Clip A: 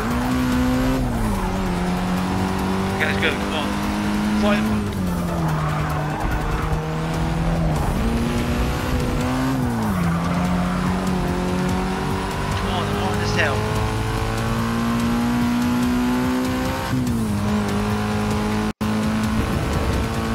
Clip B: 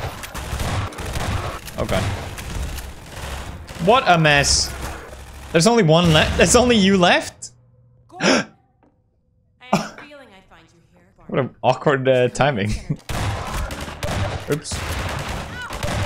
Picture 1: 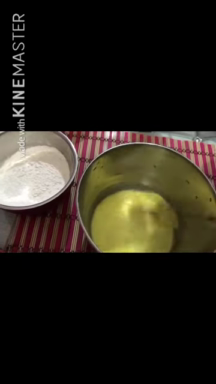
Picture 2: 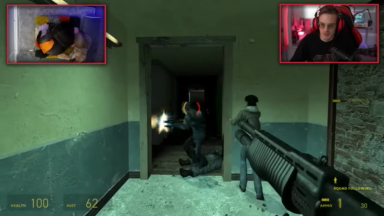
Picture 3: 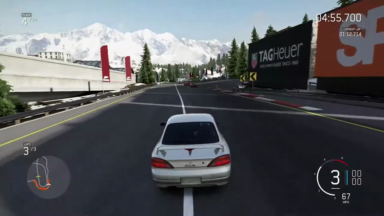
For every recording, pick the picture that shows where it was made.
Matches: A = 3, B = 2